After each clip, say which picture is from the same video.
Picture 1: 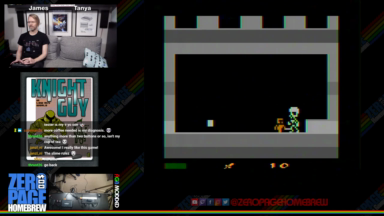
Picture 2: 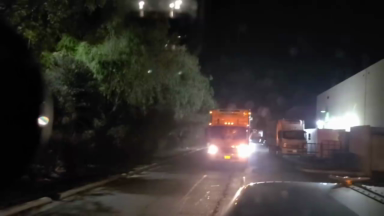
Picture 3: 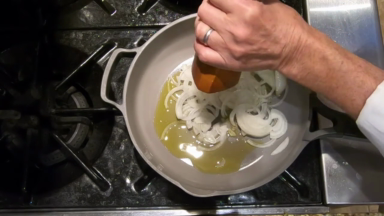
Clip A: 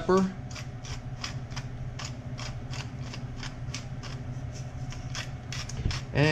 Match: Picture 3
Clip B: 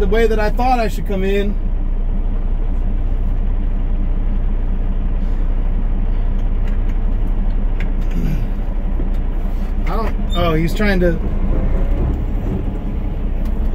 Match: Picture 2